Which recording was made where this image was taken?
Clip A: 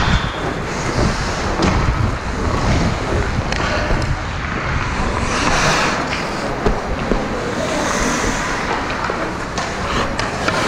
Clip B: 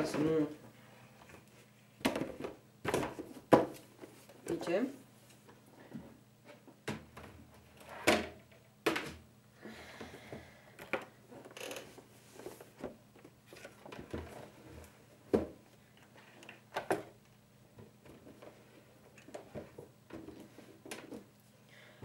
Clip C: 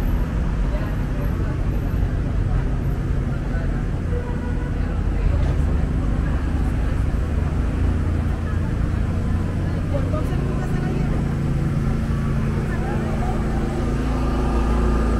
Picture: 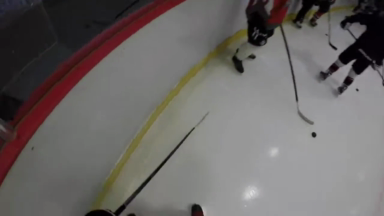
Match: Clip A